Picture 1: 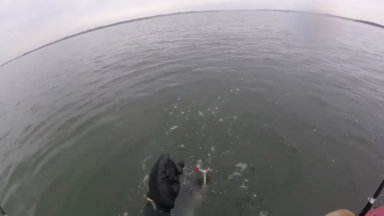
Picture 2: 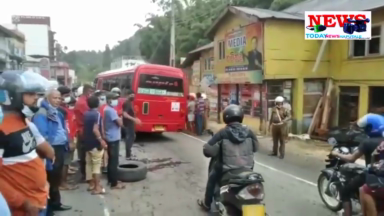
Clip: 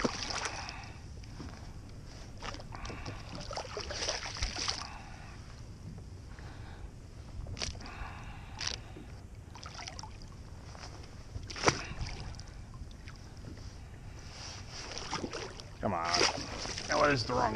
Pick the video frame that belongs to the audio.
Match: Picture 1